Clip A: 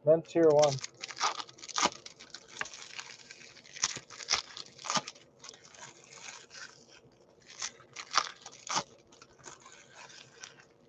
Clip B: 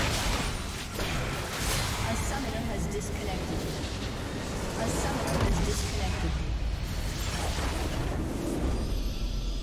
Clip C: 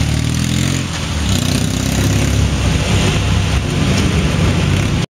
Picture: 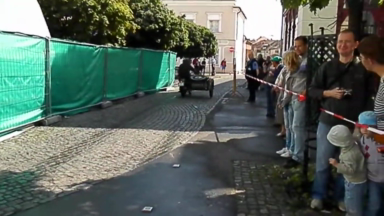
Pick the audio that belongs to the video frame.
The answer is C